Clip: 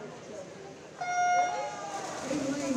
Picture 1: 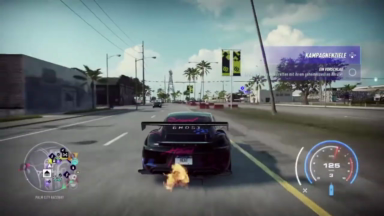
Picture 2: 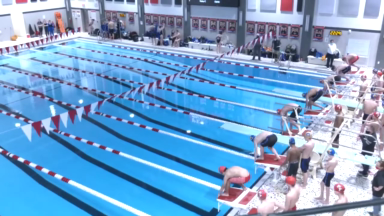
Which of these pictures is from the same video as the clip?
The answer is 2